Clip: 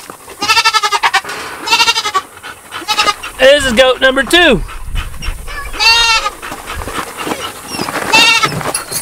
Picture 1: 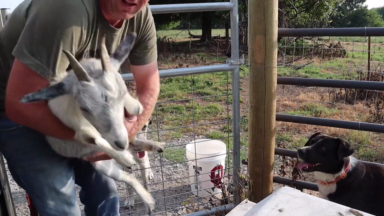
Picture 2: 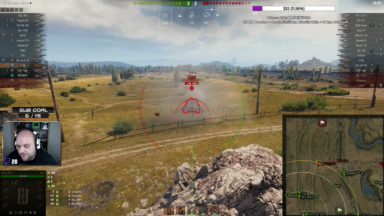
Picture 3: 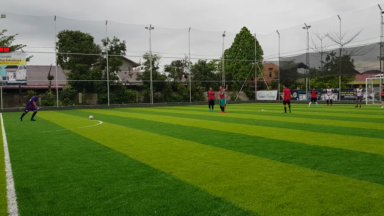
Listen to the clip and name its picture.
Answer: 1